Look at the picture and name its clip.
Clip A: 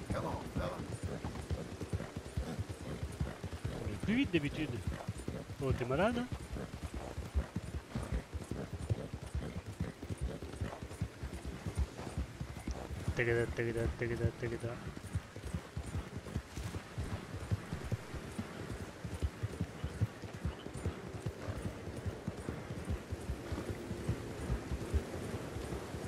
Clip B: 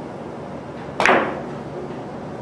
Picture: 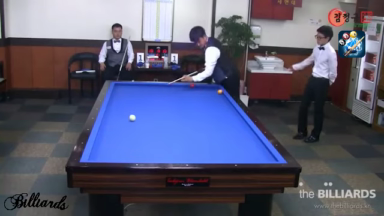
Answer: B